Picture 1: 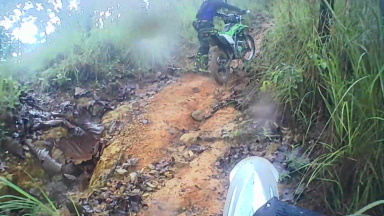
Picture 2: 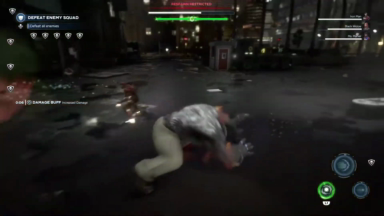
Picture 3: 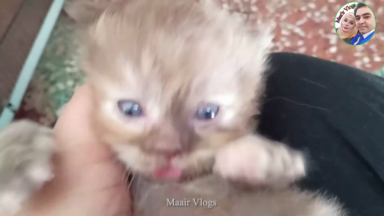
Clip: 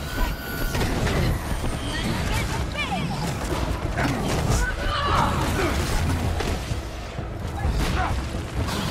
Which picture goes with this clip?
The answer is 2